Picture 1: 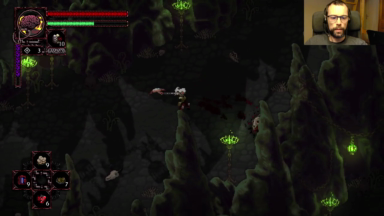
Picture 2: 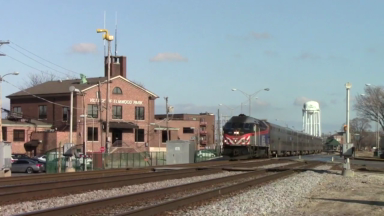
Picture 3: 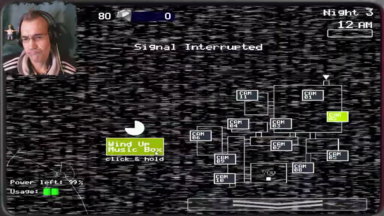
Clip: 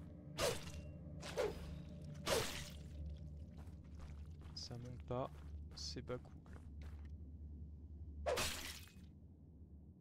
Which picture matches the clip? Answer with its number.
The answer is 1